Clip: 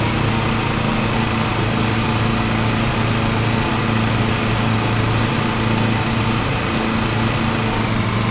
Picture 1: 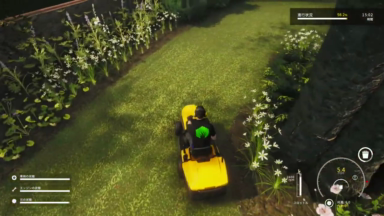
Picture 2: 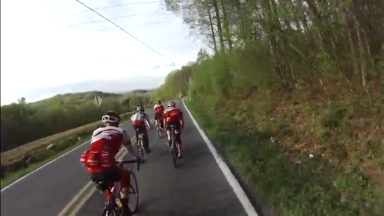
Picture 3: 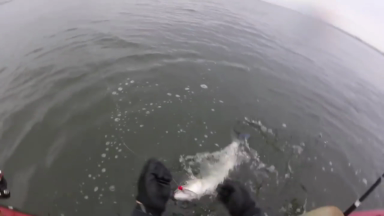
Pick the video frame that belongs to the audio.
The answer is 1